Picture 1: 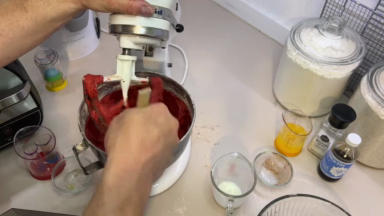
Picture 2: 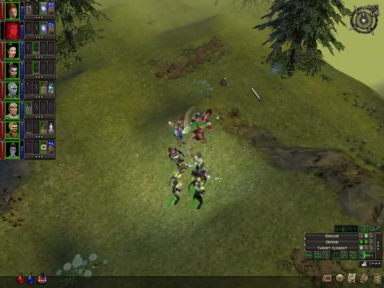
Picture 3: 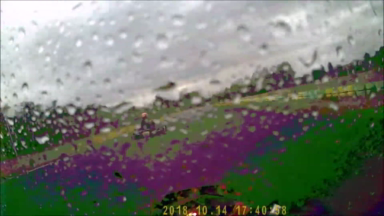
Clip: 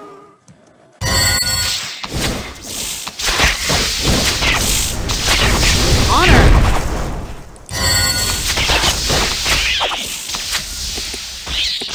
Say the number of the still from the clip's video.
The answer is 2